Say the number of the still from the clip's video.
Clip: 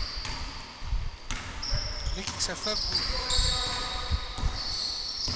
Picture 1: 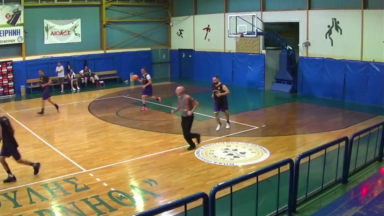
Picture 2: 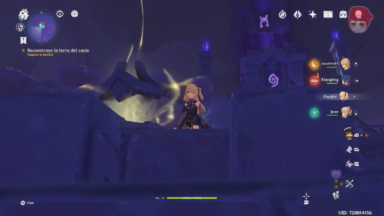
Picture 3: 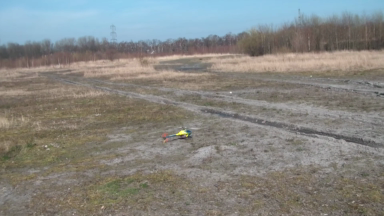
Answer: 1